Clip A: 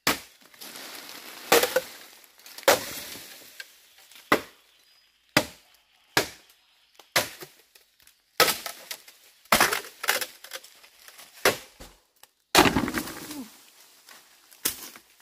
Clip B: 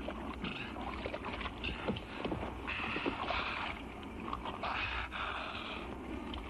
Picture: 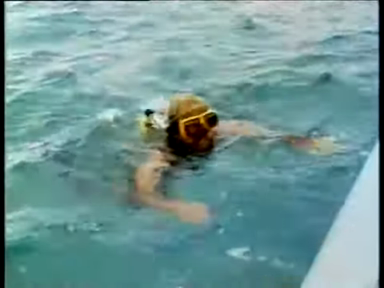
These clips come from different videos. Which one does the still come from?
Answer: B